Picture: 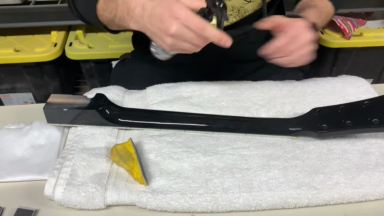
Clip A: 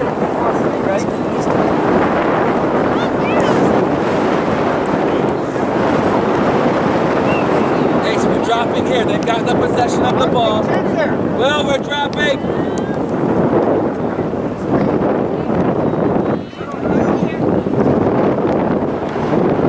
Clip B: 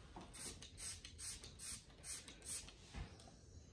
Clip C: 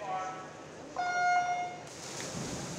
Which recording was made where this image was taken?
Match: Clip B